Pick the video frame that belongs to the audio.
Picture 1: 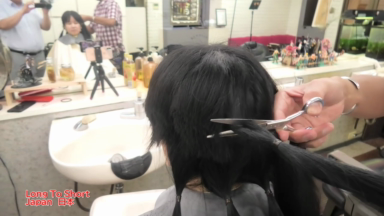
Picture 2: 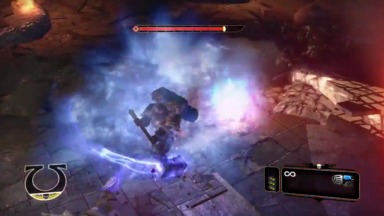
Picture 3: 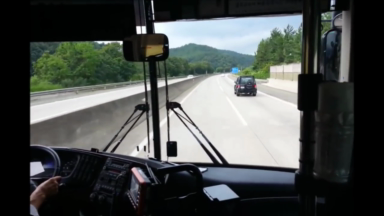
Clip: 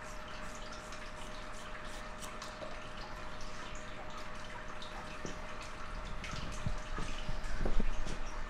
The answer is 1